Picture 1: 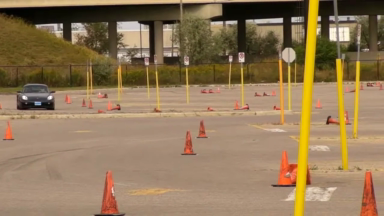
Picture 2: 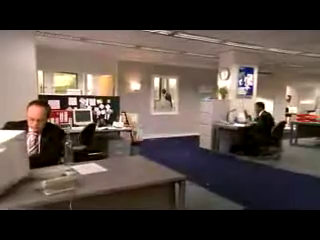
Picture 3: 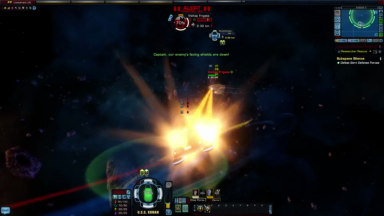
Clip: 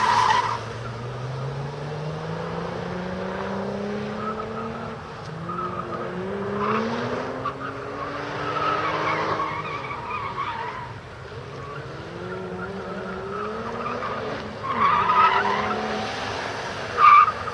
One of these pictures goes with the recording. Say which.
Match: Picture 1